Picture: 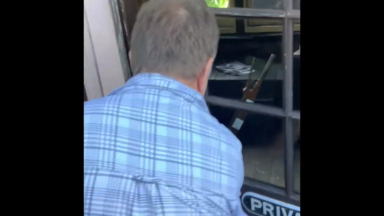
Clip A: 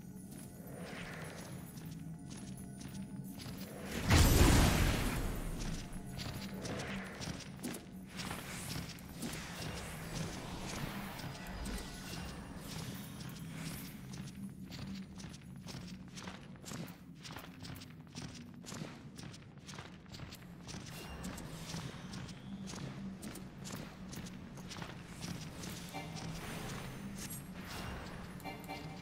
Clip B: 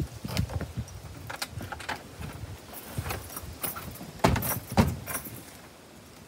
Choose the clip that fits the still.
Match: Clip B